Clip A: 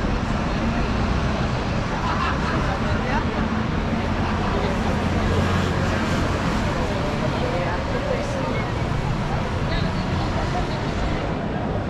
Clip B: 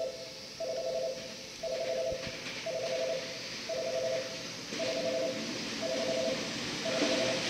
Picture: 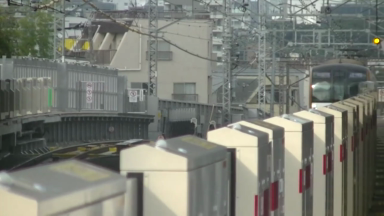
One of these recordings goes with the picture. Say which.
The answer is B